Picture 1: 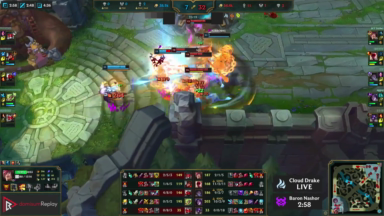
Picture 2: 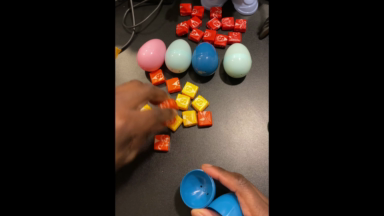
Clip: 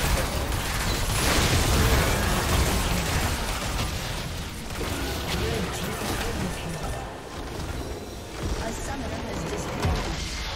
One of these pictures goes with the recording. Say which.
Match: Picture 1